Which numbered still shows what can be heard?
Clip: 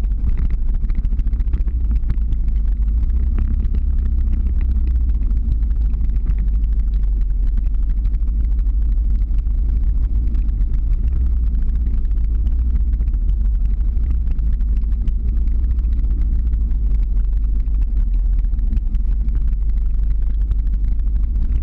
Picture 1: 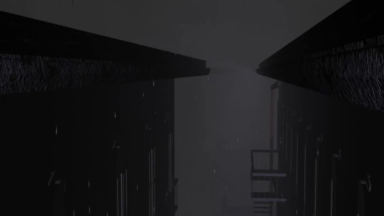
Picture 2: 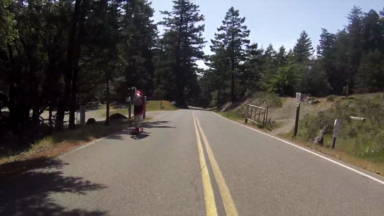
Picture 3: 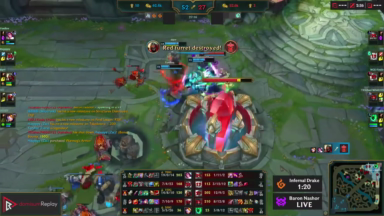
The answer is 2